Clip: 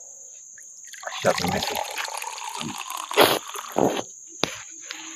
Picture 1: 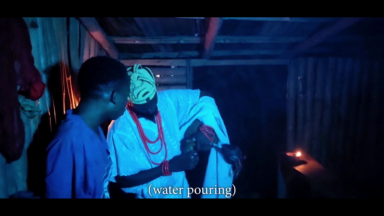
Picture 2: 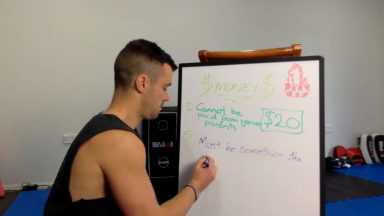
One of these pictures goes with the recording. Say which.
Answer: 1